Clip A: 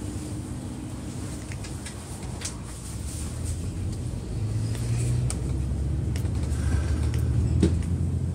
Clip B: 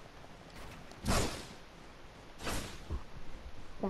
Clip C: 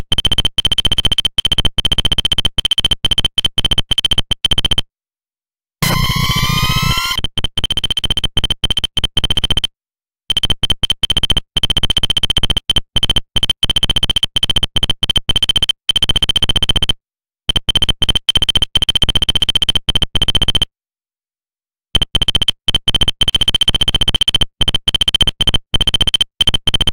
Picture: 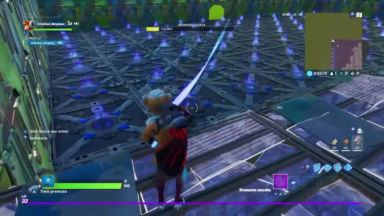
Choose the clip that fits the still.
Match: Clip B